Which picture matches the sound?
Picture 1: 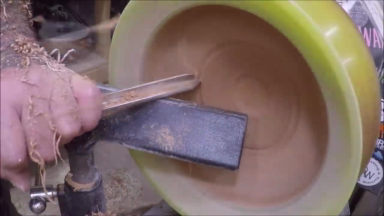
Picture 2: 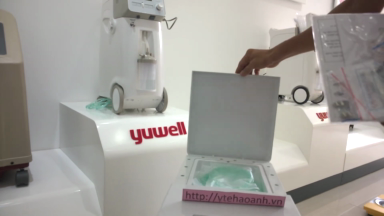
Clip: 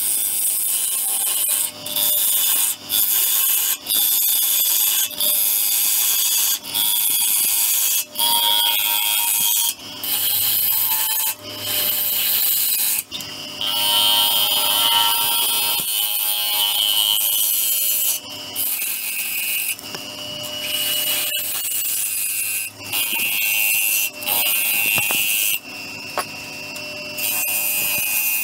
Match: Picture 1